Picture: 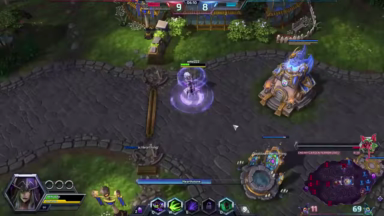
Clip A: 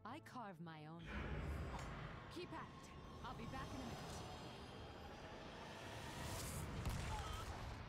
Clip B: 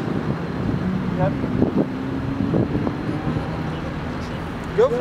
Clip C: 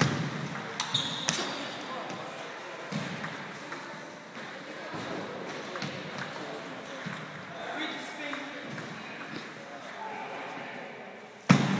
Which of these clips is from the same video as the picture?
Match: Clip A